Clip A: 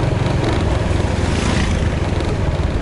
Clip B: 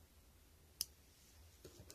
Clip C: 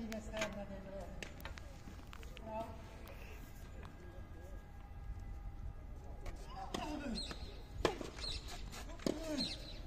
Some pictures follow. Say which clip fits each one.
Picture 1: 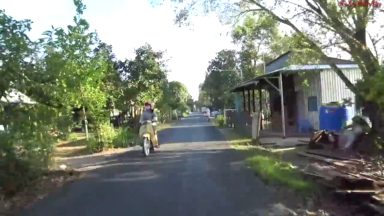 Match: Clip A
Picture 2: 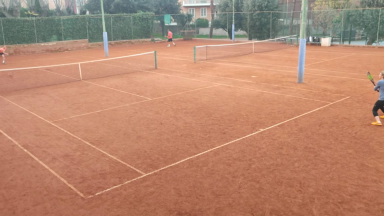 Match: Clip C